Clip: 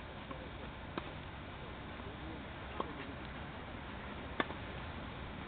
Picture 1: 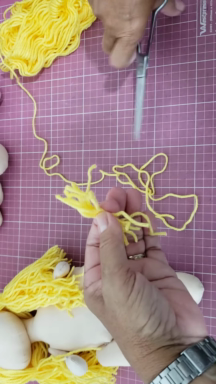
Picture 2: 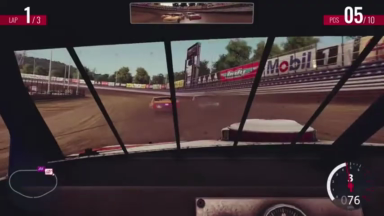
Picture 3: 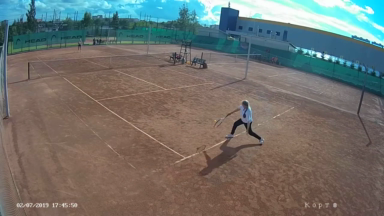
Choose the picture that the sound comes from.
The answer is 3